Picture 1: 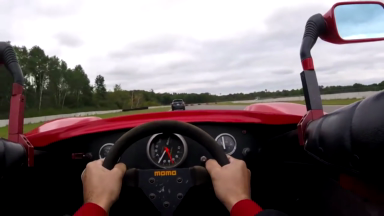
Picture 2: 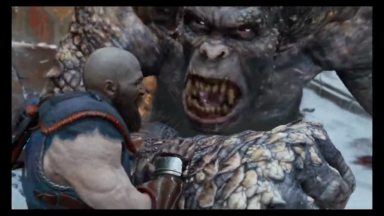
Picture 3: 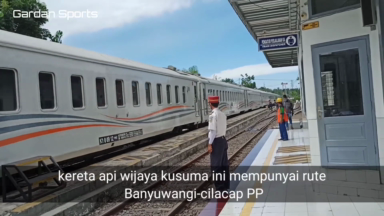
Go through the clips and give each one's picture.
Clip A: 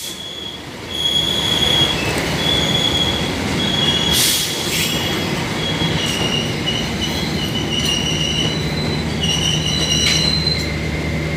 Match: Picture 3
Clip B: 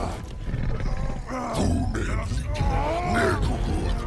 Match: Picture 2